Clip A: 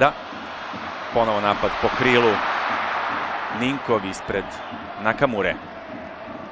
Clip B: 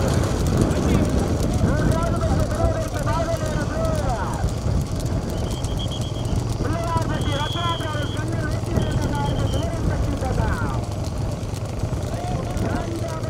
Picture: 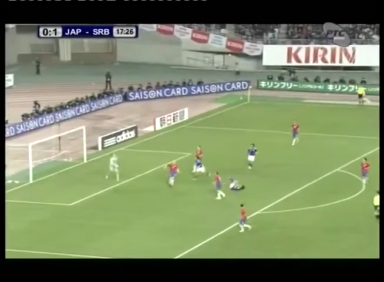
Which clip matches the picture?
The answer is A